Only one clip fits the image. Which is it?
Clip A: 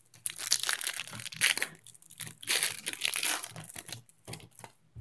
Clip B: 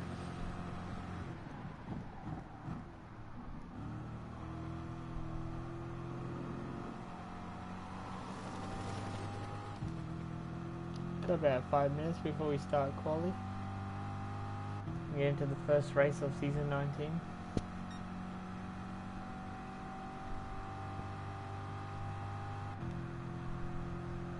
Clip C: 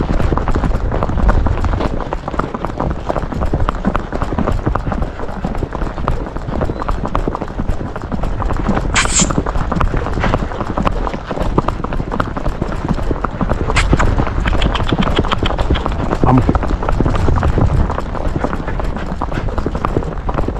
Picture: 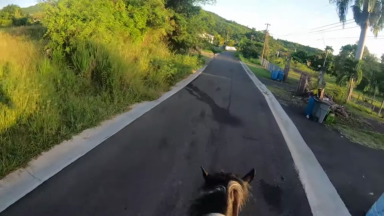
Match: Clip C